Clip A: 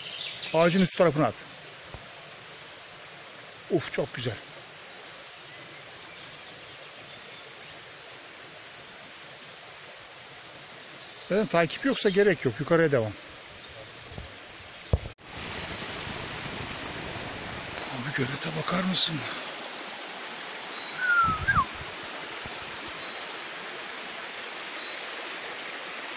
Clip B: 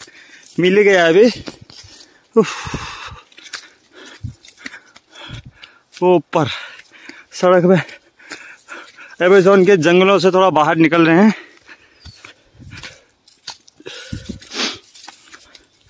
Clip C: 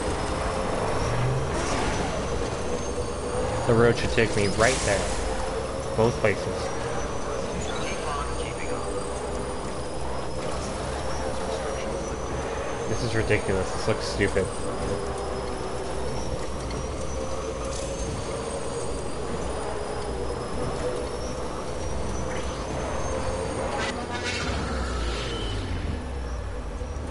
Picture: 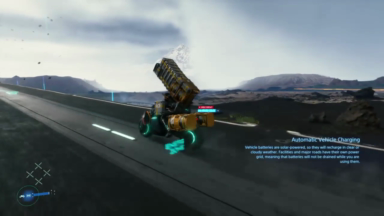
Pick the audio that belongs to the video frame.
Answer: C